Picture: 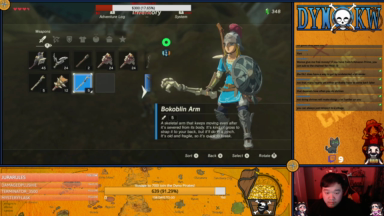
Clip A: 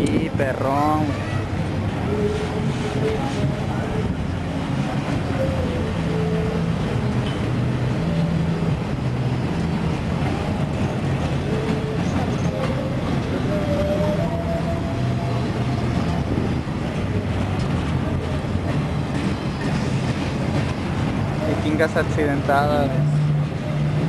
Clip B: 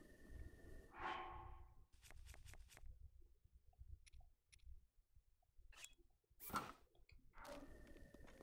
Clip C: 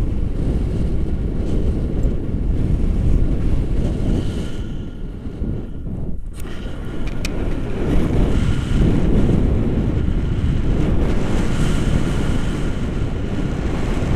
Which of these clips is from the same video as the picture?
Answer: B